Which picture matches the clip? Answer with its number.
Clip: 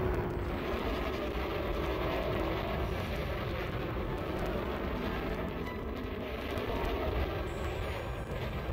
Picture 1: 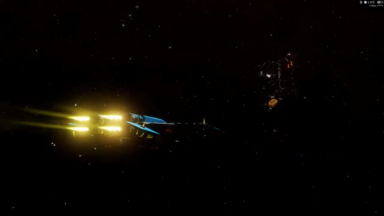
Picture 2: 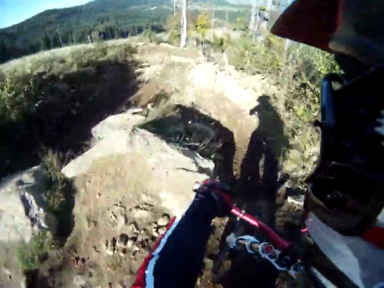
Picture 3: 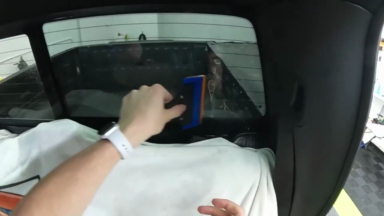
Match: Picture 1